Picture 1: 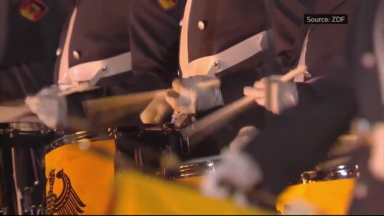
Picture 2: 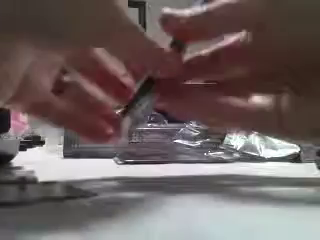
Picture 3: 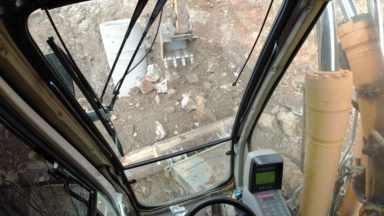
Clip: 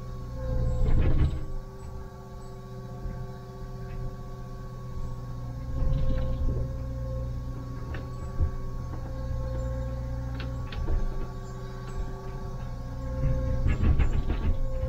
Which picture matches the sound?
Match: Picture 3